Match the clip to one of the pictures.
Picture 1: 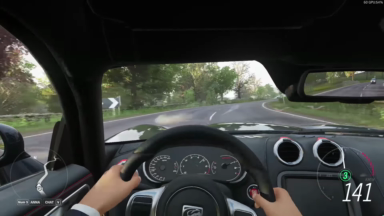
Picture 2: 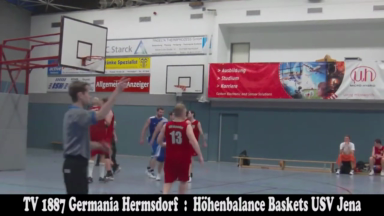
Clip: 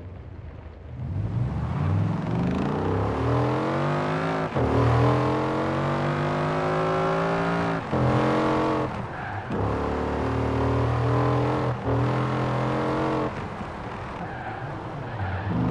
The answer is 1